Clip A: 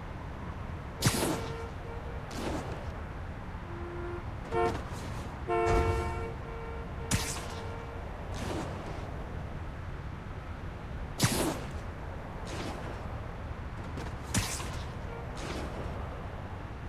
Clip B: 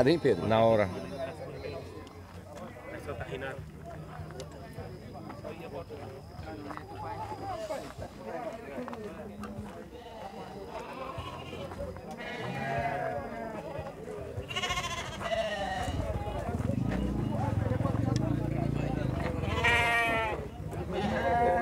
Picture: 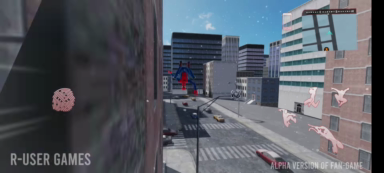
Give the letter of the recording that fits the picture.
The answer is A